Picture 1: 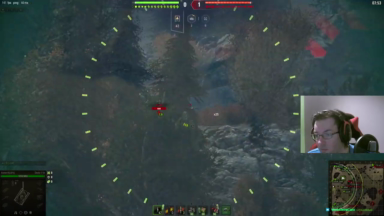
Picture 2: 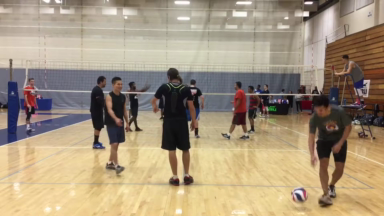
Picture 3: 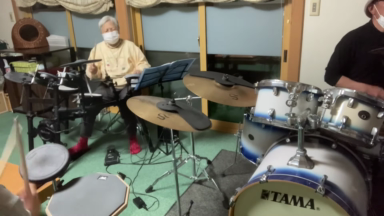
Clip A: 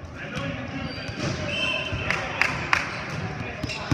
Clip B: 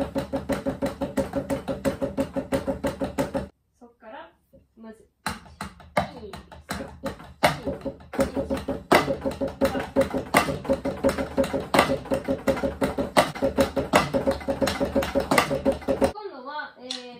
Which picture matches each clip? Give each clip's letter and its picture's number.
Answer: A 2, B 3